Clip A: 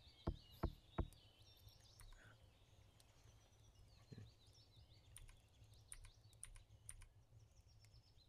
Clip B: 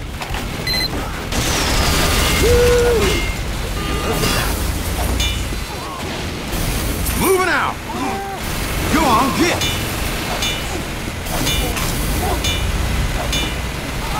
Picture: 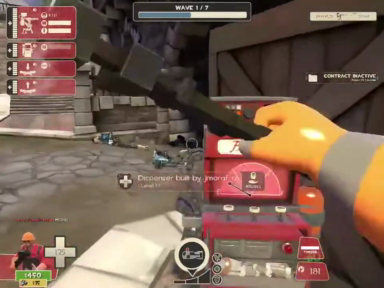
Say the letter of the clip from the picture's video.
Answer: B